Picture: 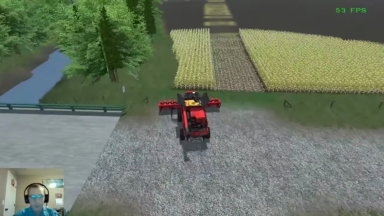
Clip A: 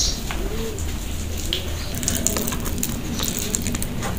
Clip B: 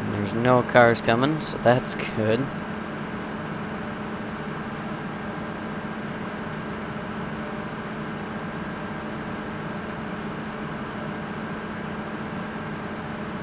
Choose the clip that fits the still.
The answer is B